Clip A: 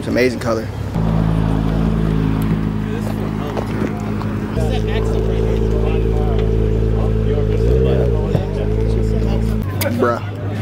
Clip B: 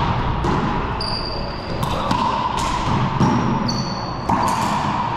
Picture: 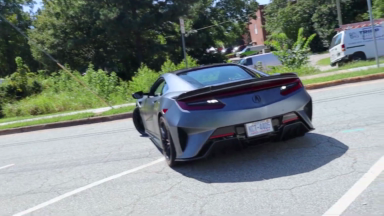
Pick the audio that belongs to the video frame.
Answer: A